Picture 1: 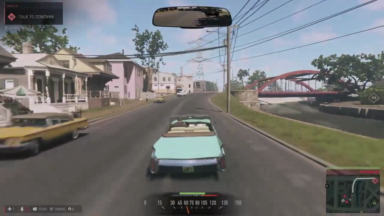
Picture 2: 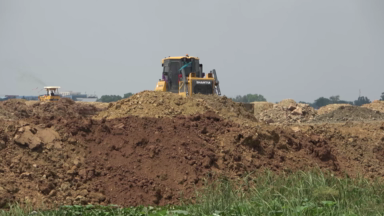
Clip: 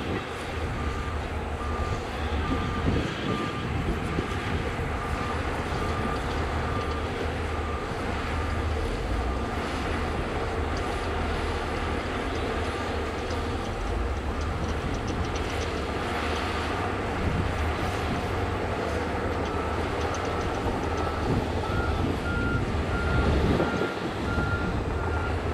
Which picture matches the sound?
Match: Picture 2